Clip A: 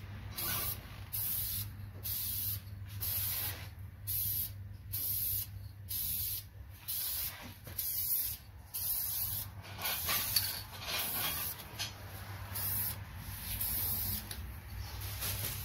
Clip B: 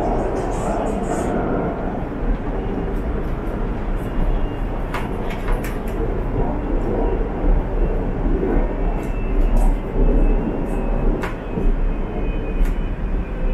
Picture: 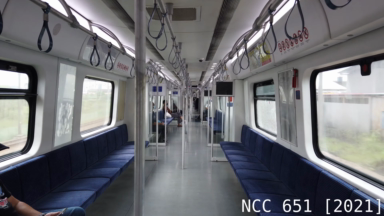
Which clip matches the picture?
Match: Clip B